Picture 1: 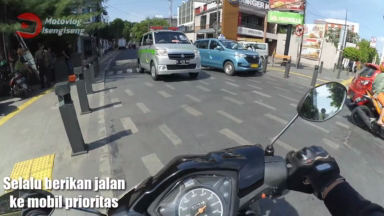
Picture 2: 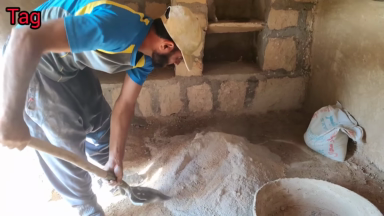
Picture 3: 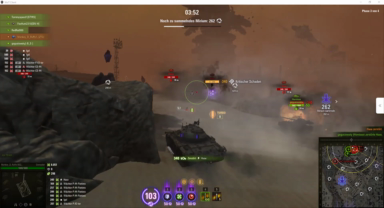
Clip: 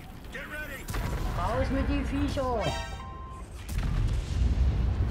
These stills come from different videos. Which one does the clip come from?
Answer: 3